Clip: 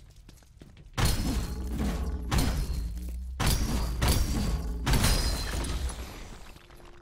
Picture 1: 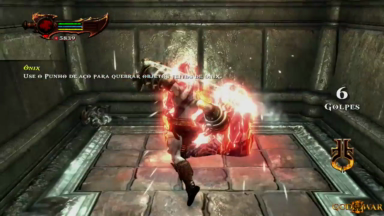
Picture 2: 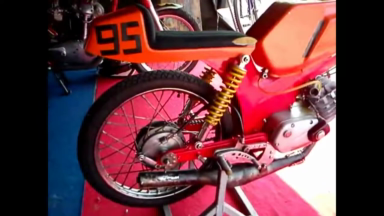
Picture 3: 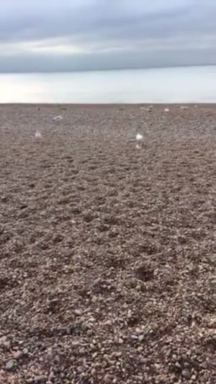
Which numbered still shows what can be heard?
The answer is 1